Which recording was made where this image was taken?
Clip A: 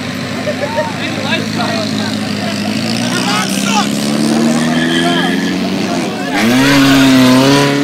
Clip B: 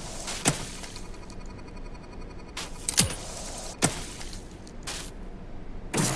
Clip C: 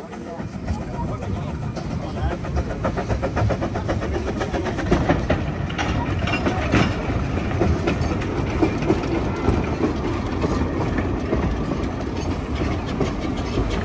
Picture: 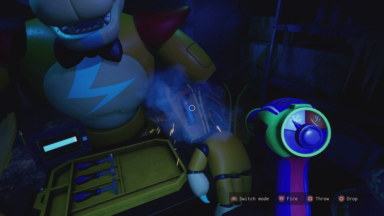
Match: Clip B